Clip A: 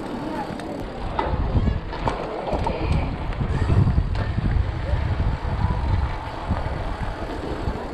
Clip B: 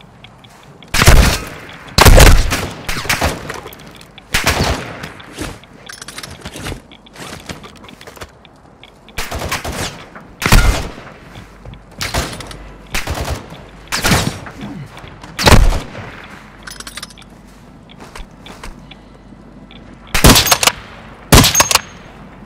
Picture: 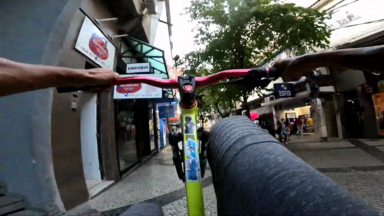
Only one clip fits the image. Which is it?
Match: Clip A